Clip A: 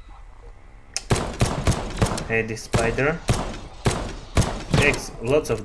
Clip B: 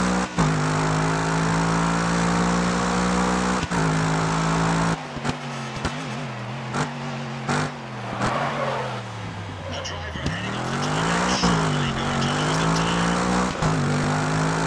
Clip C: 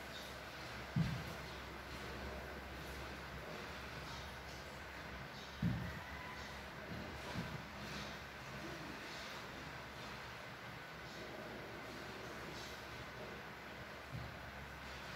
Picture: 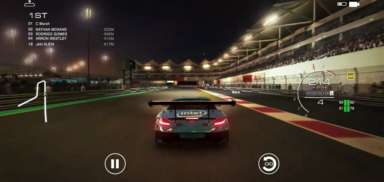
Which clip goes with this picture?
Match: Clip B